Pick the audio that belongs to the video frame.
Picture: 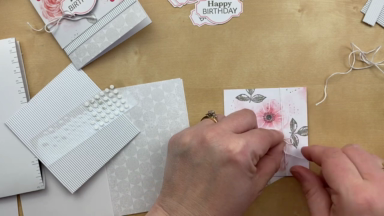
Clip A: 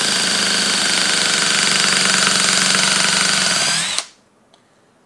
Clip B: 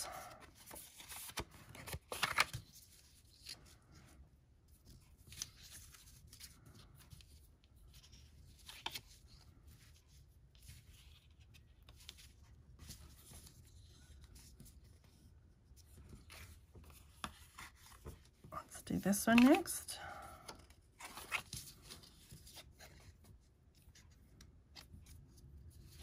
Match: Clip B